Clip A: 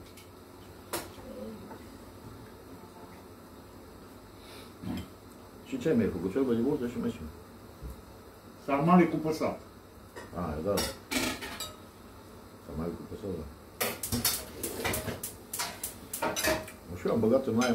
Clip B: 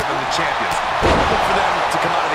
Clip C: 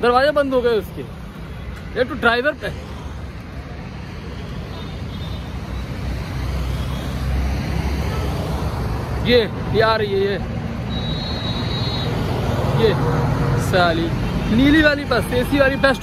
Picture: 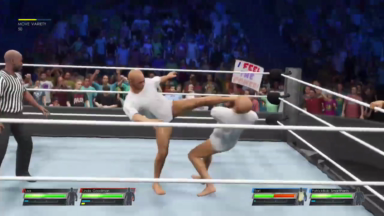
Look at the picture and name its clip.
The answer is B